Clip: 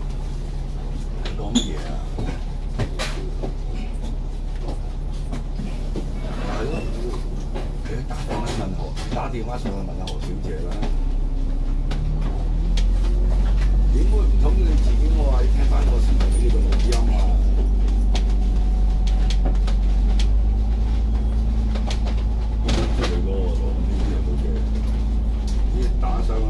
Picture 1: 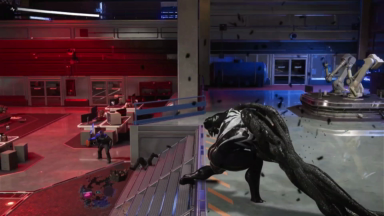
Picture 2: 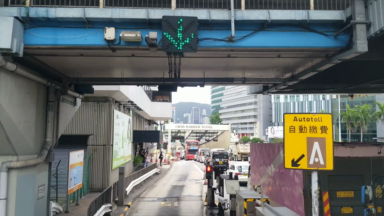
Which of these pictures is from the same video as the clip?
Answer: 2